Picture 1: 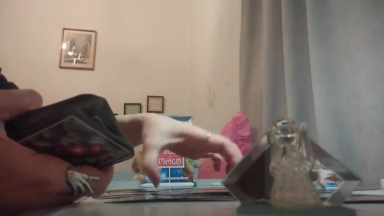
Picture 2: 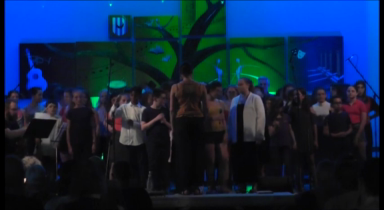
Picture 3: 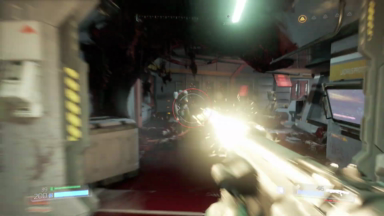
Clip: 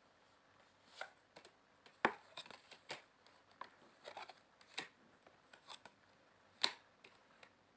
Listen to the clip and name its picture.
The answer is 1